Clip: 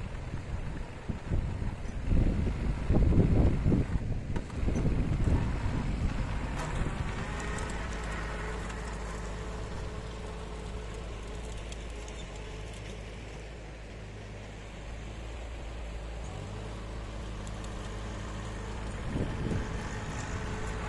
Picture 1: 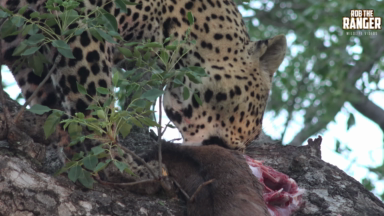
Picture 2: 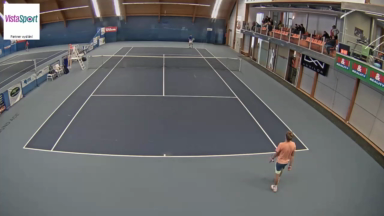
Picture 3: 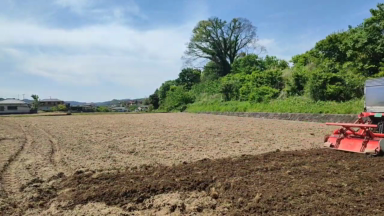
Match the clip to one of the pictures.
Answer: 3